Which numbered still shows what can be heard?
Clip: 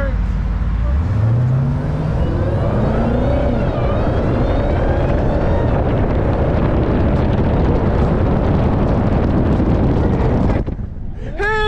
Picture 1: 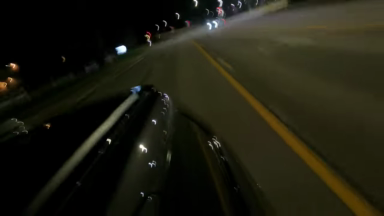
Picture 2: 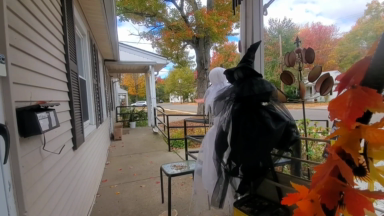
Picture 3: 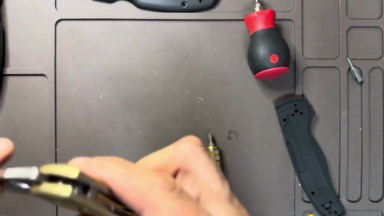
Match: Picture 1